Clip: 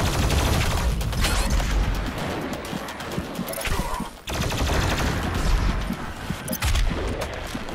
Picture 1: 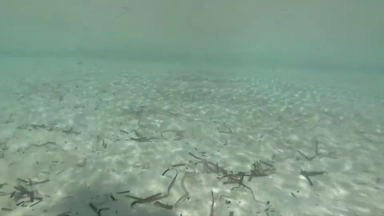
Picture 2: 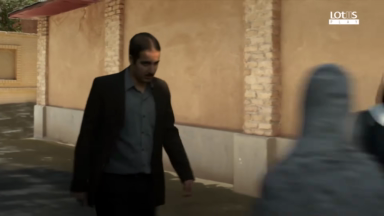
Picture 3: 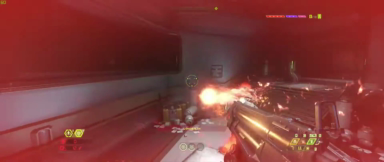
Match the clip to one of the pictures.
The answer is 3